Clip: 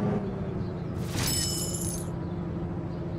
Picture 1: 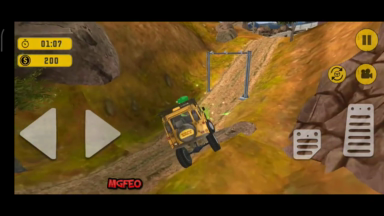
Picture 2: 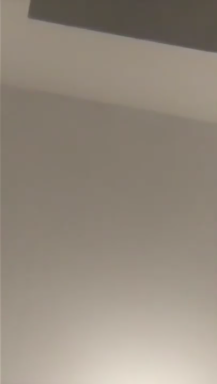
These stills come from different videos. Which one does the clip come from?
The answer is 1